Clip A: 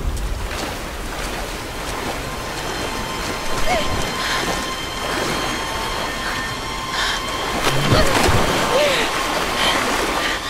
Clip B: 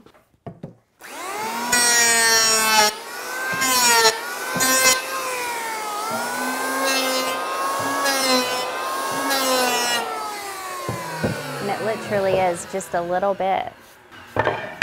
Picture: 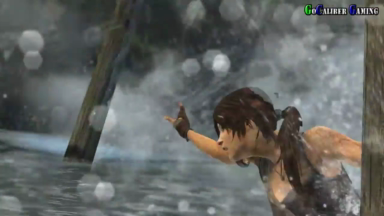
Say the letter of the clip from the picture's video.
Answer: A